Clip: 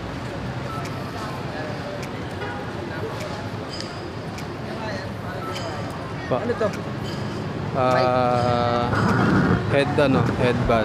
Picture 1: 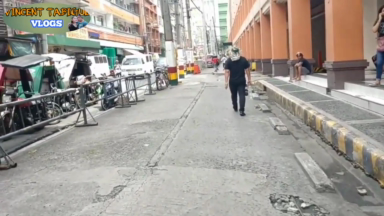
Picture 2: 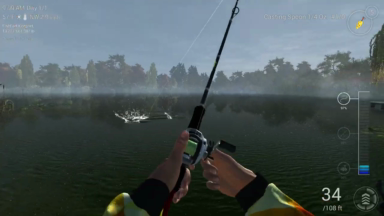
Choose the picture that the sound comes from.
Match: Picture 1